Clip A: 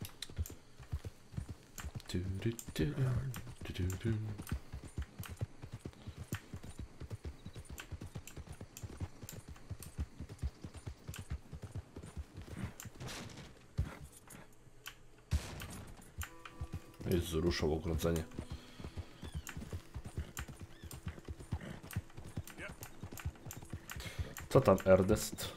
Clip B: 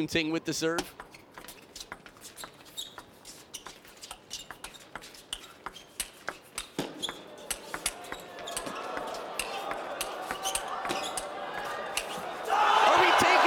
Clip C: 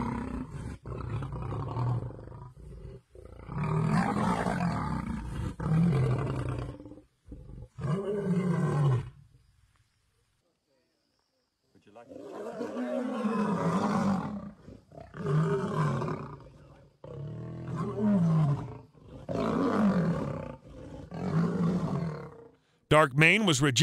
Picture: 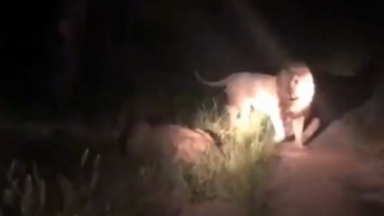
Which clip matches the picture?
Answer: C